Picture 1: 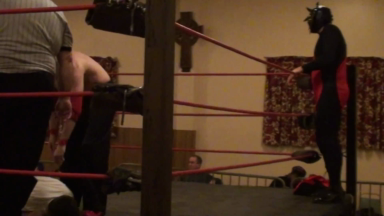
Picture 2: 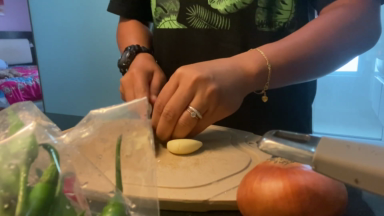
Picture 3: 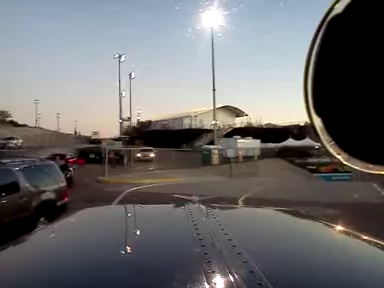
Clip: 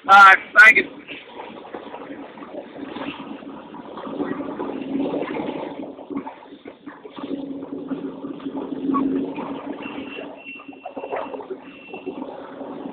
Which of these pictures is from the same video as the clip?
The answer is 3